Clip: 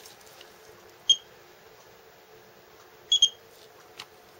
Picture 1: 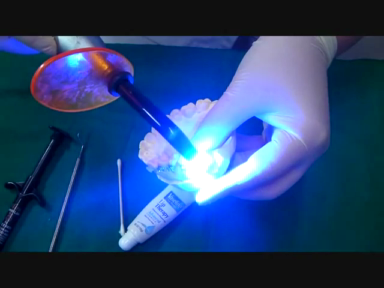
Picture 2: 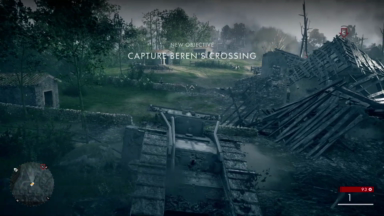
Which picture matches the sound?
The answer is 1